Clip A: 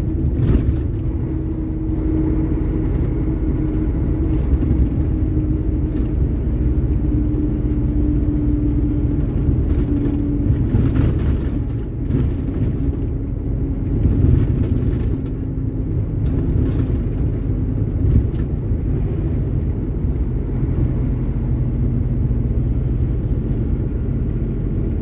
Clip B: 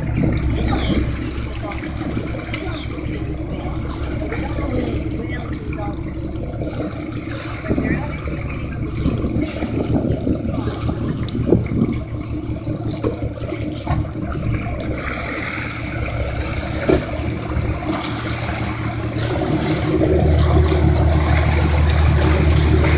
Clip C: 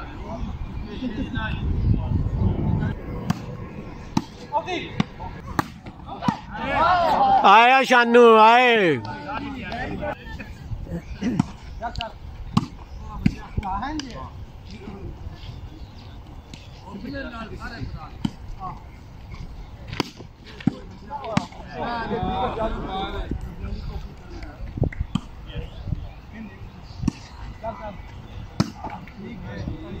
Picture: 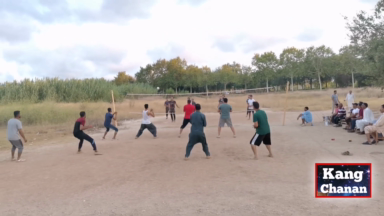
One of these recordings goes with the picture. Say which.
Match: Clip C